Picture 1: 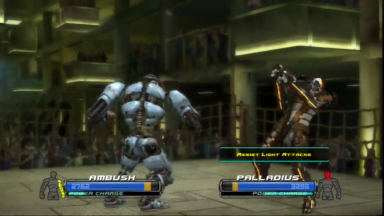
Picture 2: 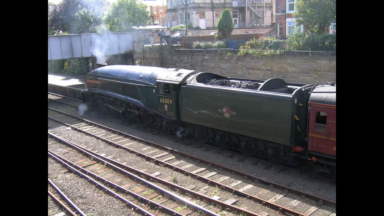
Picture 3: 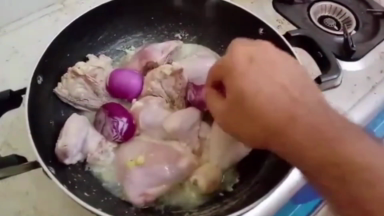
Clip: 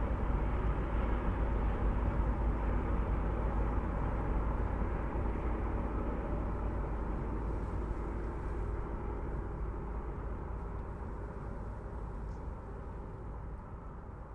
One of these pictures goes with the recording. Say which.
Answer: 2